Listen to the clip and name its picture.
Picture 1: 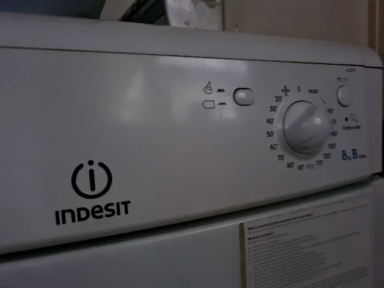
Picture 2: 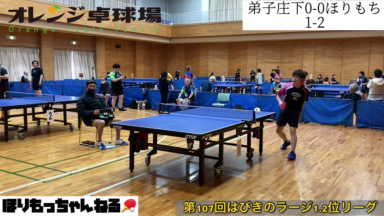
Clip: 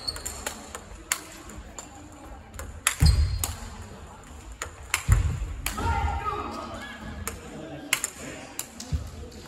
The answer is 2